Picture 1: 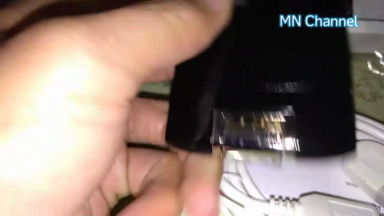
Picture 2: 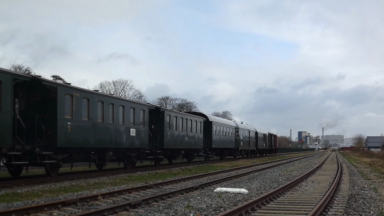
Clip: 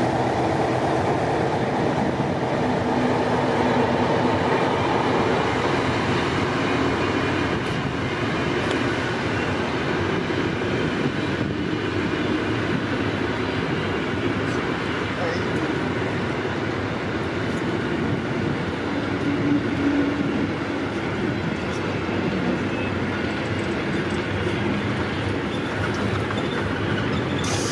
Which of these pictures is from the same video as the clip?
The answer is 2